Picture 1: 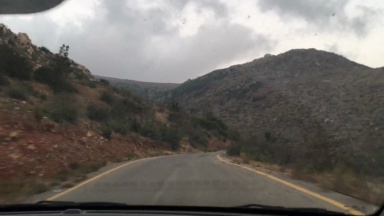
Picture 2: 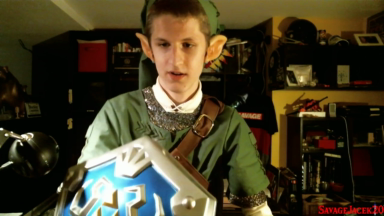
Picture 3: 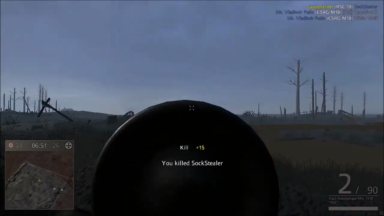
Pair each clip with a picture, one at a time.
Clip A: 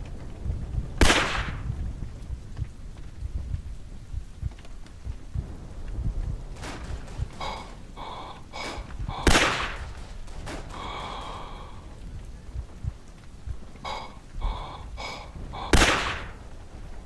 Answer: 3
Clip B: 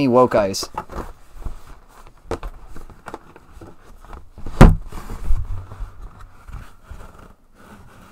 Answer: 2